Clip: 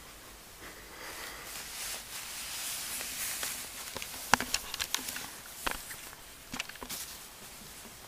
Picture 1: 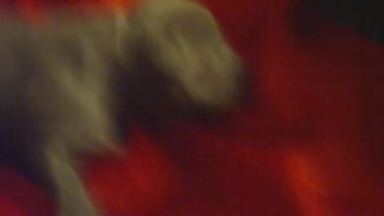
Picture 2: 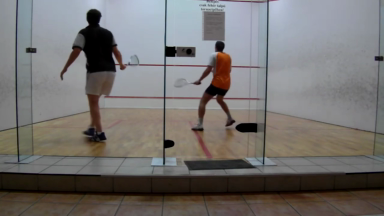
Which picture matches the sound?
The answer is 1